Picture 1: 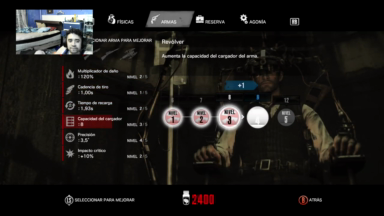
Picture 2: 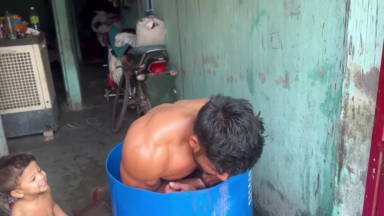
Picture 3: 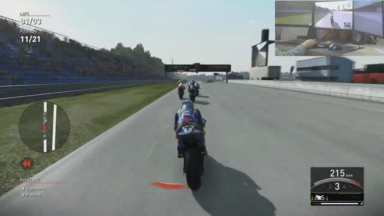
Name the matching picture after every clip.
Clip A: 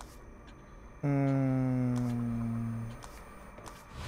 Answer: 1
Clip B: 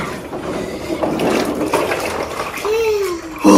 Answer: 2